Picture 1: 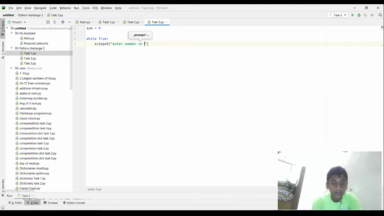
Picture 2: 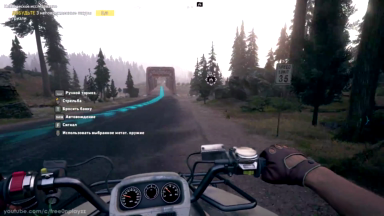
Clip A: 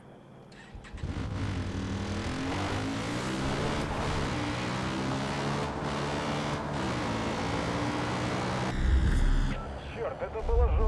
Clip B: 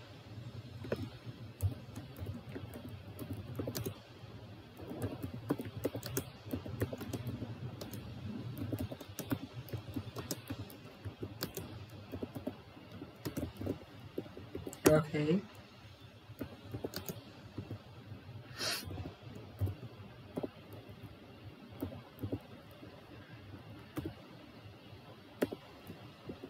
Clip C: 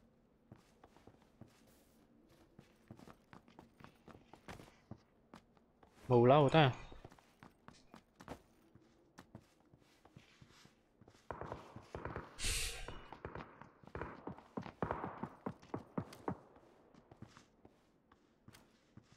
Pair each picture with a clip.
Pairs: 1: B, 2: A